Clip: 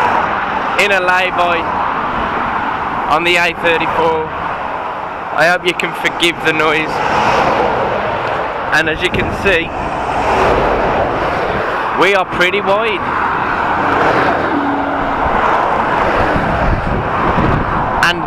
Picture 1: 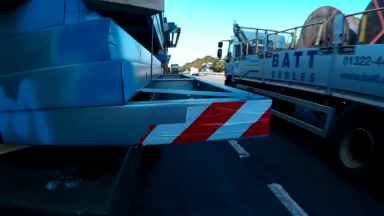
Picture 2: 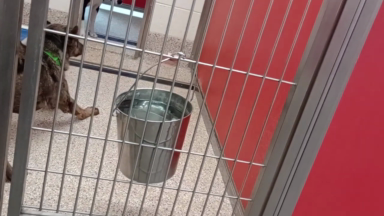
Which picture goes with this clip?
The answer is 1